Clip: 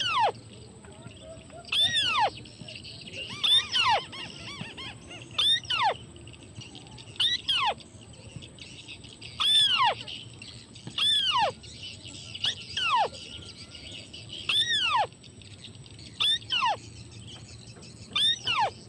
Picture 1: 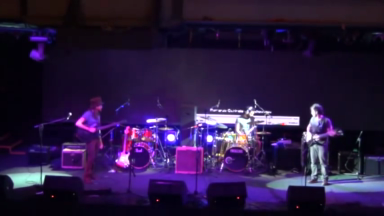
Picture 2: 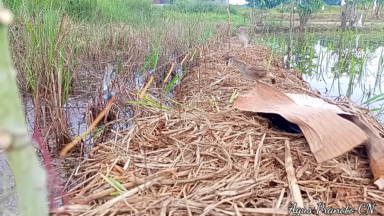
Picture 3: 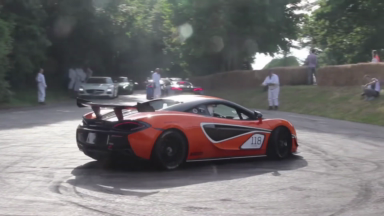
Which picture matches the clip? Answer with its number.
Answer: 2